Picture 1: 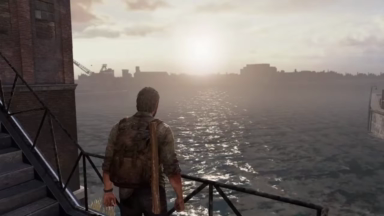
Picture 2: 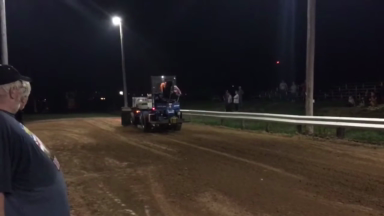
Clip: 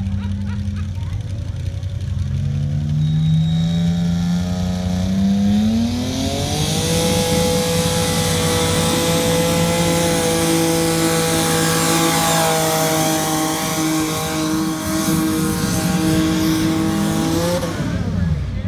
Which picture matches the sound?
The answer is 2